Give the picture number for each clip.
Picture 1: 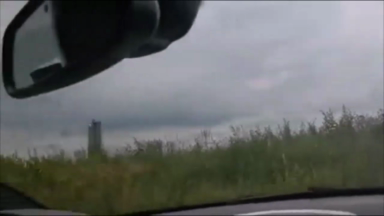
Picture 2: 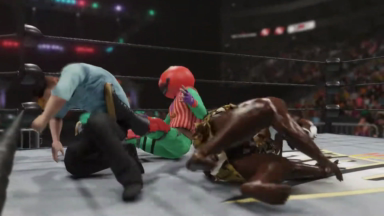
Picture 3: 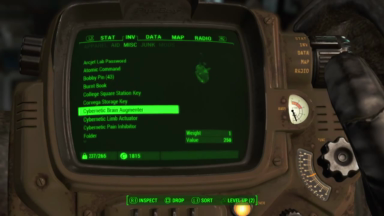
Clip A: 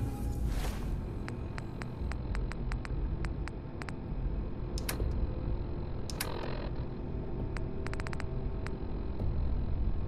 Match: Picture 3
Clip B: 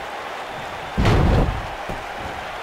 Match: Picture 2